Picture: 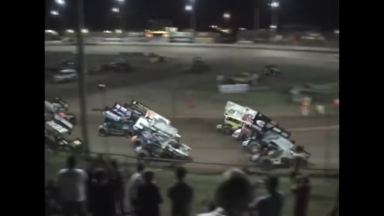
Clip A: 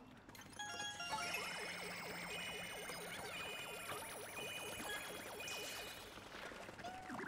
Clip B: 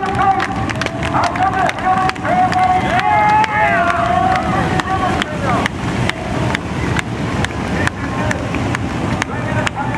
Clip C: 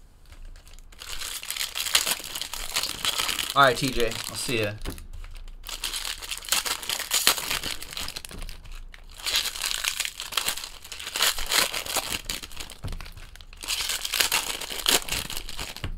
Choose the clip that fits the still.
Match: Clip B